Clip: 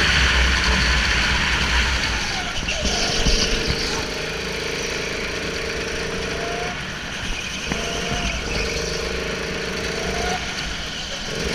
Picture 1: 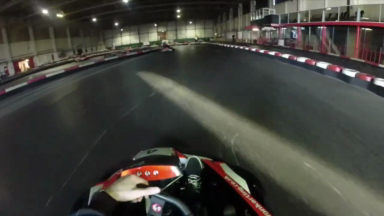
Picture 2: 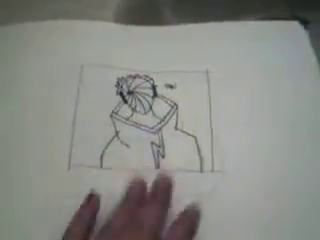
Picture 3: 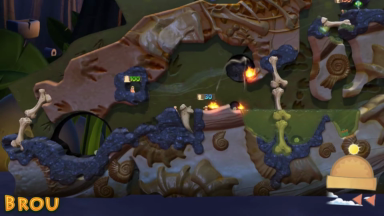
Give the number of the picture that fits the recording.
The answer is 1